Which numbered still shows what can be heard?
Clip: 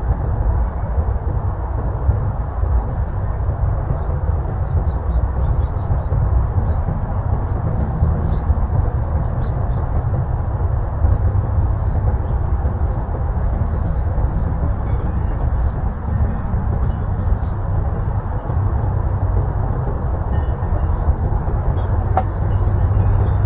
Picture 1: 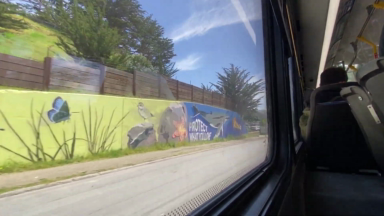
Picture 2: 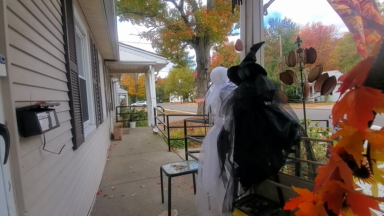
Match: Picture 2